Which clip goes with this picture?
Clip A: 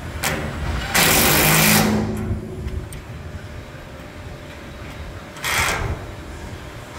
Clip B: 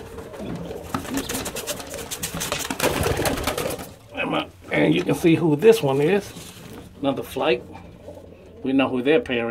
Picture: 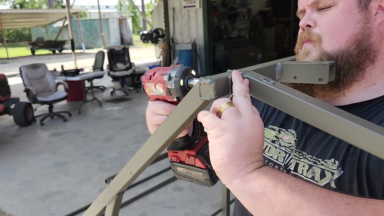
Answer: A